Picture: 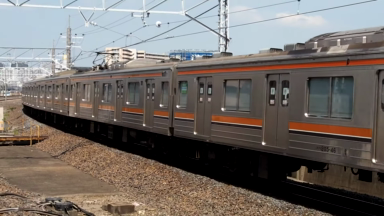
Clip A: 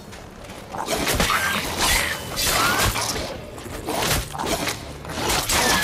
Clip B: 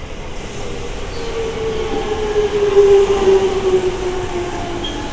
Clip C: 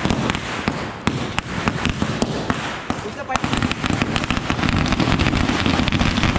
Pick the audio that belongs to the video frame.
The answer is B